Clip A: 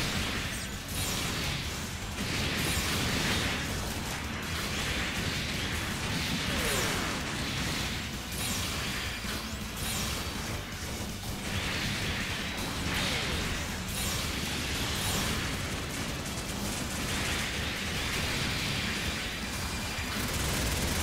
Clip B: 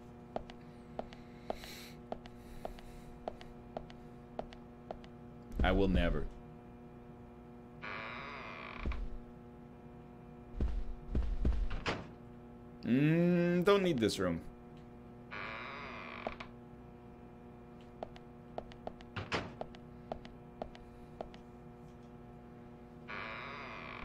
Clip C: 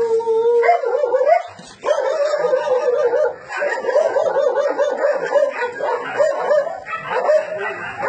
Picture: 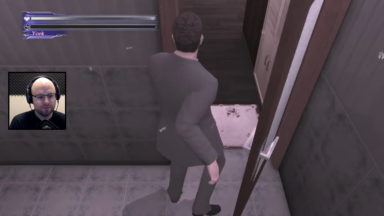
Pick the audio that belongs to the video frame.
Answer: B